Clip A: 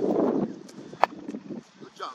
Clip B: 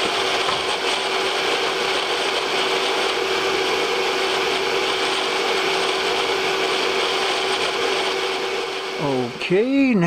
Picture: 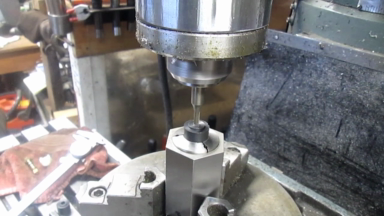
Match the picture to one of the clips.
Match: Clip B